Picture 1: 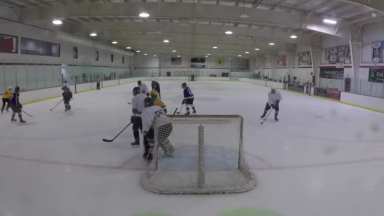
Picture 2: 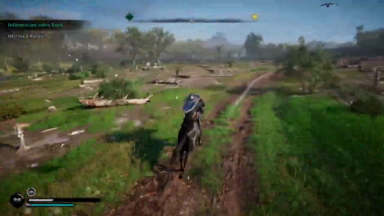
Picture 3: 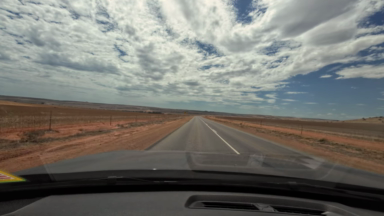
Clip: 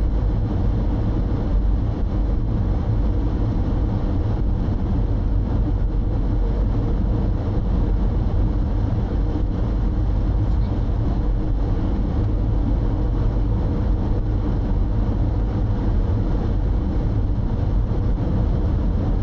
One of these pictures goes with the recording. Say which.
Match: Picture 3